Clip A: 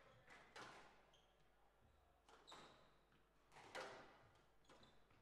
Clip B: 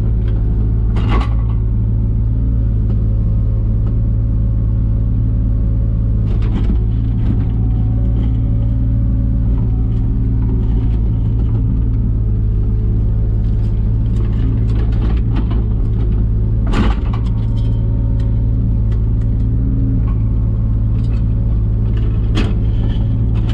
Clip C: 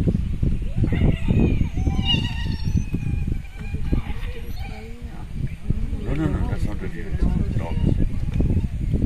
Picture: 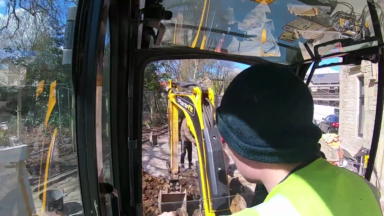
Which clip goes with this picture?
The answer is B